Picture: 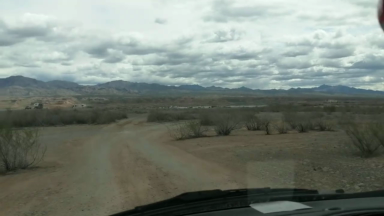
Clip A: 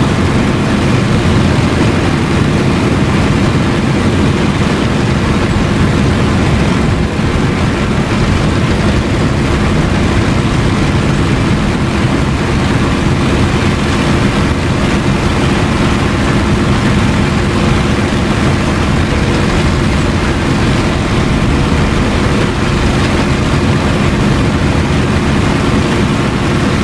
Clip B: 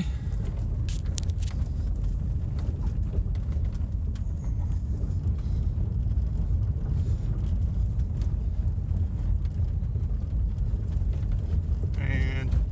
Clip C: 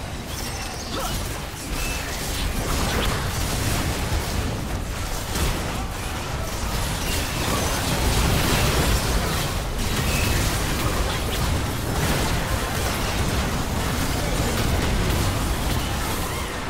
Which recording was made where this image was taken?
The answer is B